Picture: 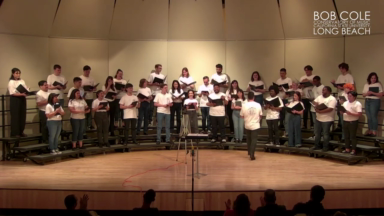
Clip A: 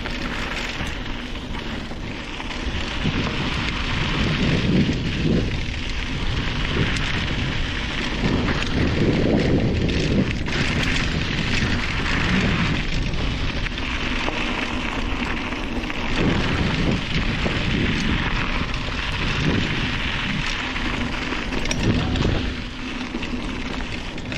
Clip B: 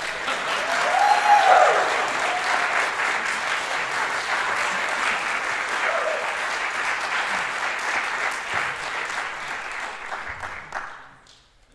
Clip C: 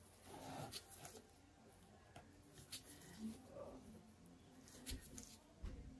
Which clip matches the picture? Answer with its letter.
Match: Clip B